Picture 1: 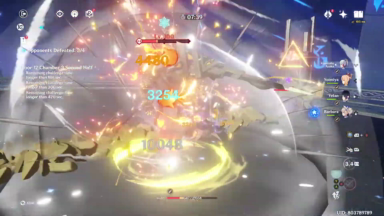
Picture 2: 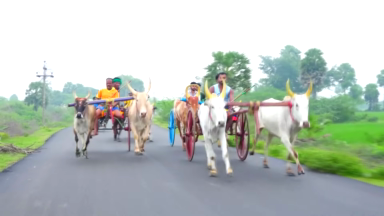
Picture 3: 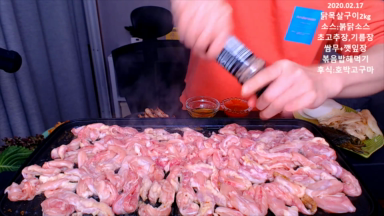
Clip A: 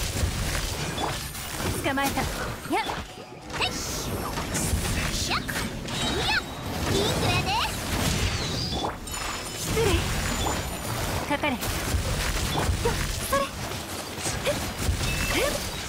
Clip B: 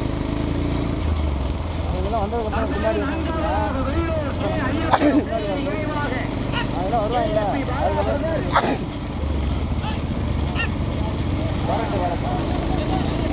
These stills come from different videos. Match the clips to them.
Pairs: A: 1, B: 2